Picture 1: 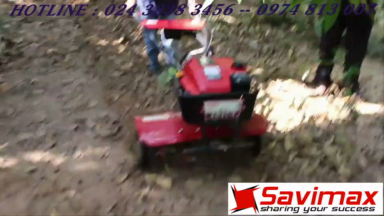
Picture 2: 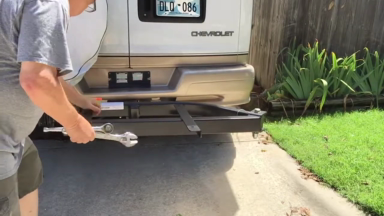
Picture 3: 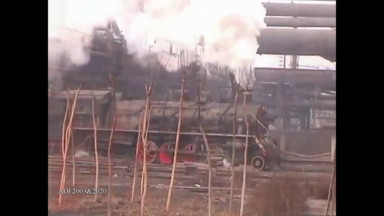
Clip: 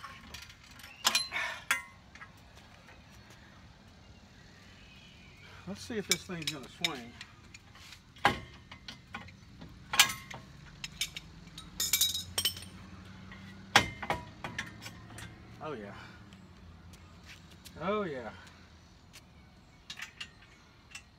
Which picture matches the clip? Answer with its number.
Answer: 2